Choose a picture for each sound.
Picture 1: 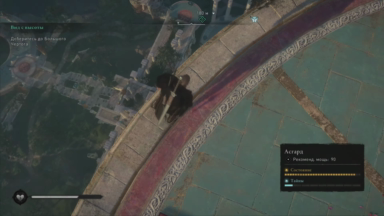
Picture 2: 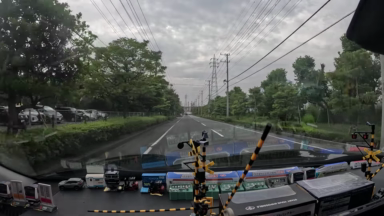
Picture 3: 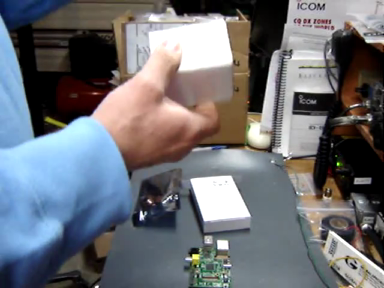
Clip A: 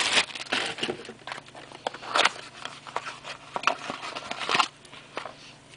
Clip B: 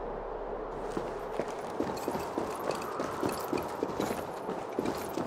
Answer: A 3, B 1